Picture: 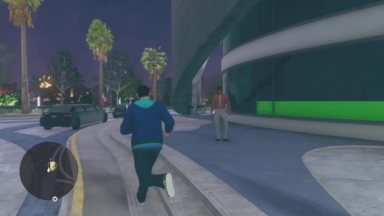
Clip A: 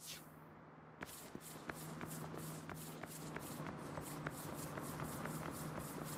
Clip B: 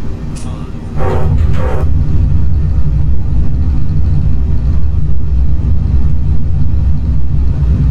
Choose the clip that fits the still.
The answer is A